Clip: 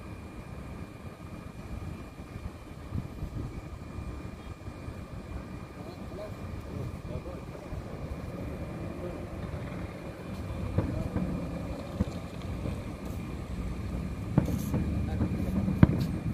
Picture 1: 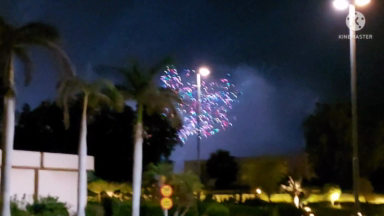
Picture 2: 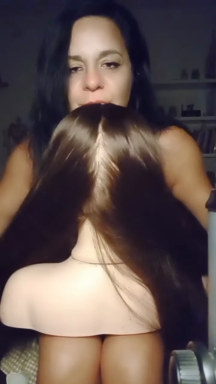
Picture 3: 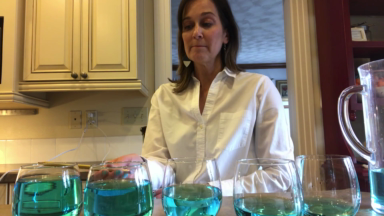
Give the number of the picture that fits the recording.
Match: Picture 1